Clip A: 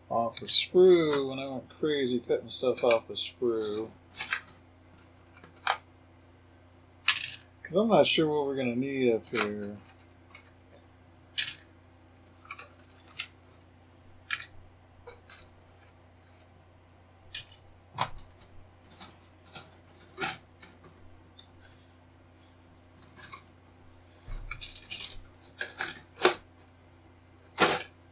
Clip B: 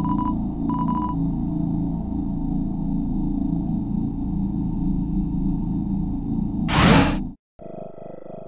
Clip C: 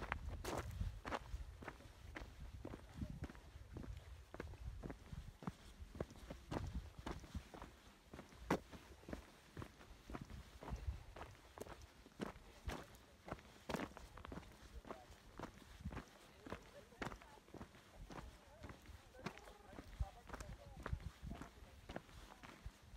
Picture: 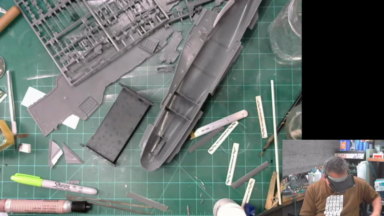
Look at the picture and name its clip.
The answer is A